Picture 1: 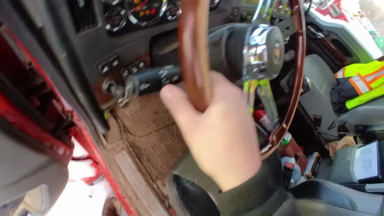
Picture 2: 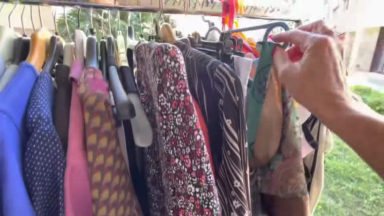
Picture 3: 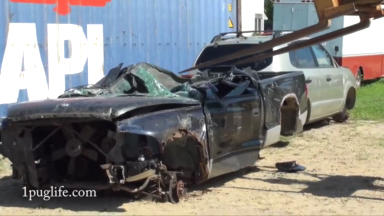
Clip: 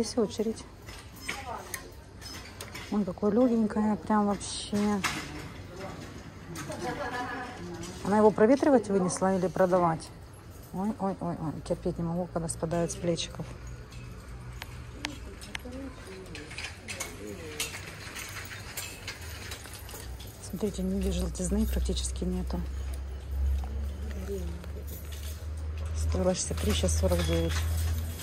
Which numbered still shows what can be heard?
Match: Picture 2